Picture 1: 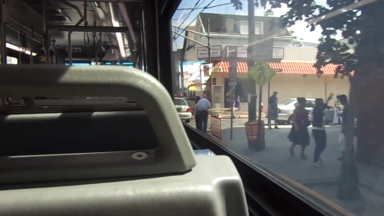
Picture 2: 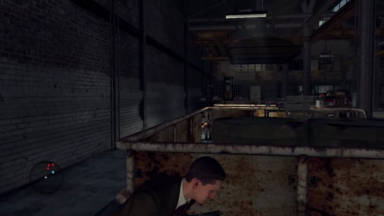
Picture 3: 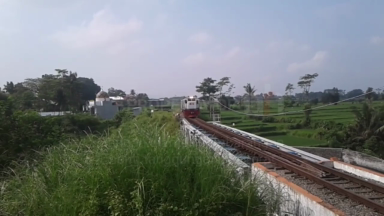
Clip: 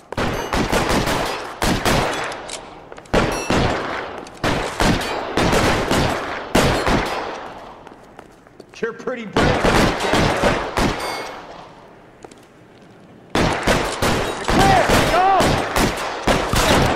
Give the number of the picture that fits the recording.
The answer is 2